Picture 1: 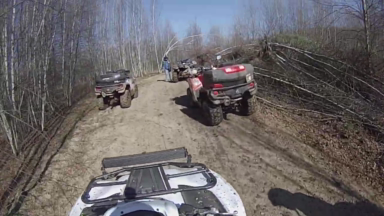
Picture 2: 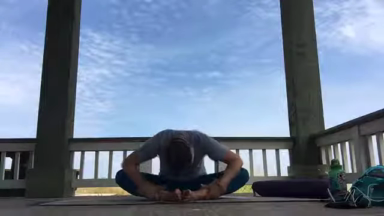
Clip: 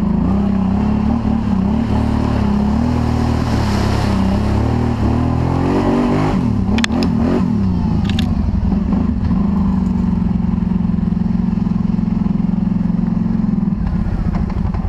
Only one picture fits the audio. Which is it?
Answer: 1